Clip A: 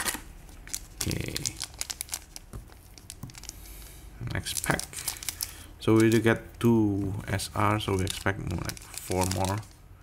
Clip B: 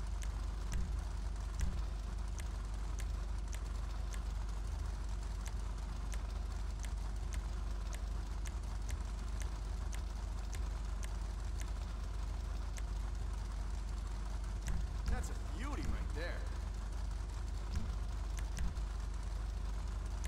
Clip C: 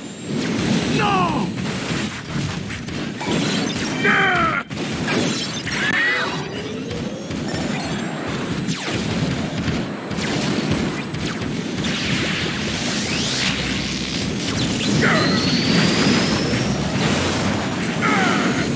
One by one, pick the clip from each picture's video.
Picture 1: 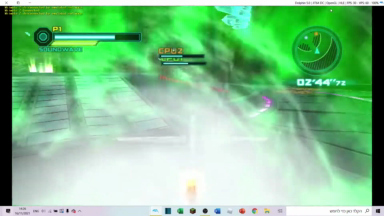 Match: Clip C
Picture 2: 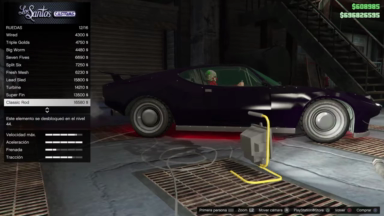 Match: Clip B